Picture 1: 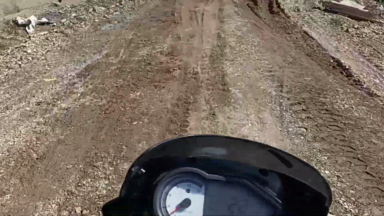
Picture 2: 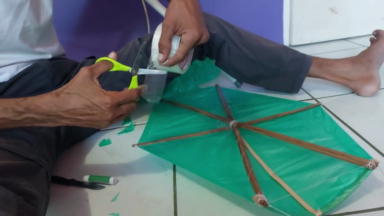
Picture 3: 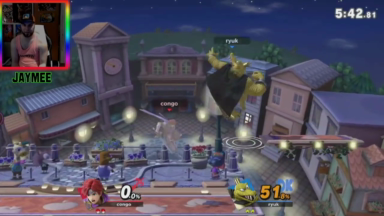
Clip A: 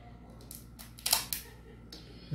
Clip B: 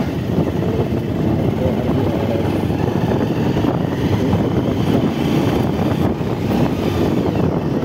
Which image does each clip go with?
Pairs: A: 2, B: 1